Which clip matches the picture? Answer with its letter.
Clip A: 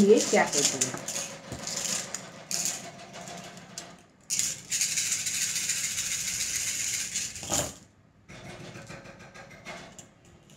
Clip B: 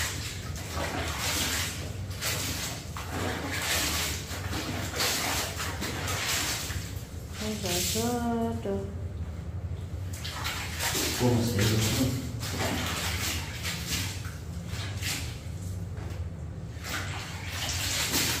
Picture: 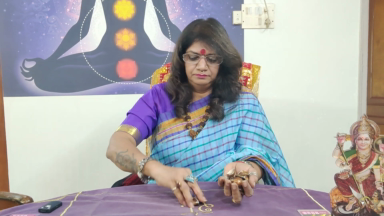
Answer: A